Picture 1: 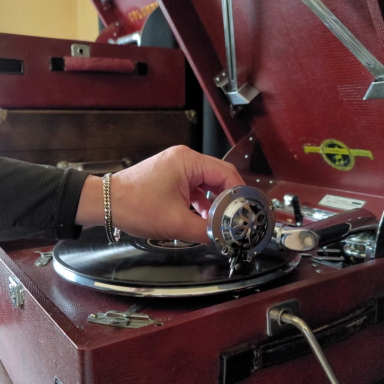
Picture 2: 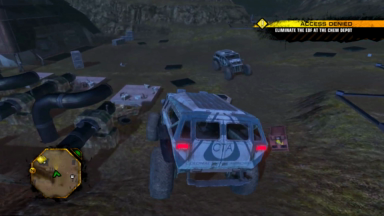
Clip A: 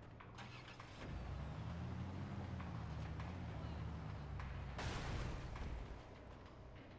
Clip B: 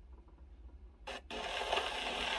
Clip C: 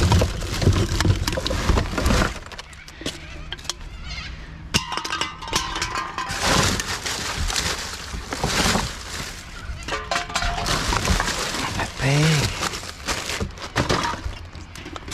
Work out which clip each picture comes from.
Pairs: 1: B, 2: A